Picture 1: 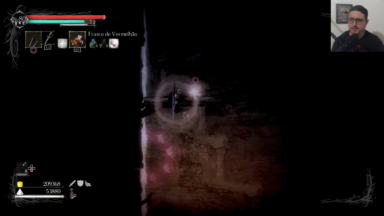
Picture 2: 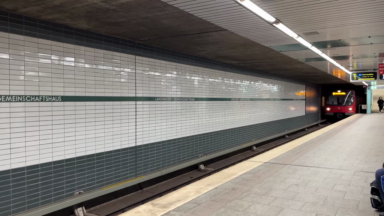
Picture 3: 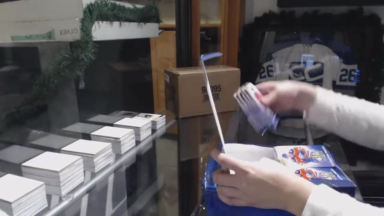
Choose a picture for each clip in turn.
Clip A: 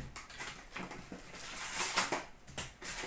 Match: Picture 3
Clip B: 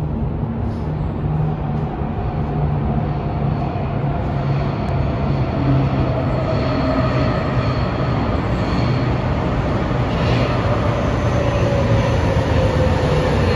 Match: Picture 2